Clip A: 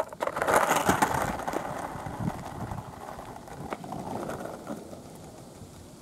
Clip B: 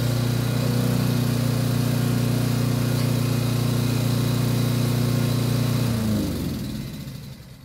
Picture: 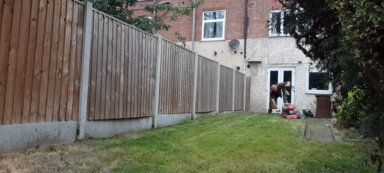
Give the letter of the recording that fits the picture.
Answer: B